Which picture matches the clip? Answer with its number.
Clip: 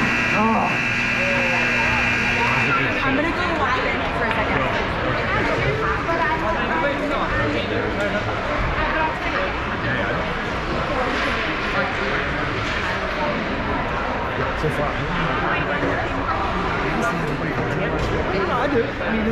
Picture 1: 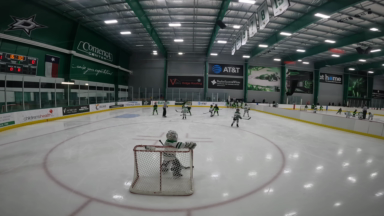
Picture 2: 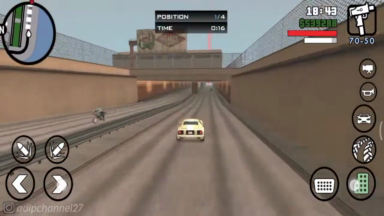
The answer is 1